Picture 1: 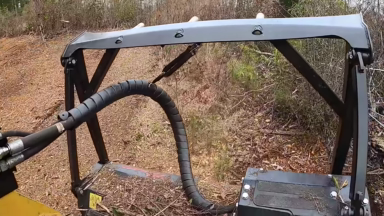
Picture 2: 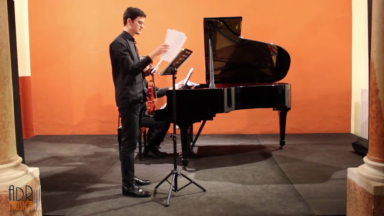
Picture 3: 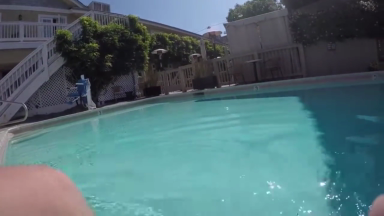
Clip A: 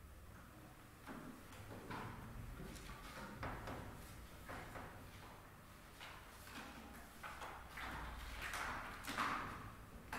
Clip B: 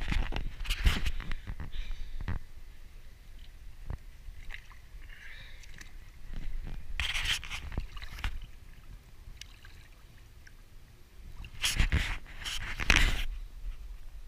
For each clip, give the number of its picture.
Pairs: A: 2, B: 3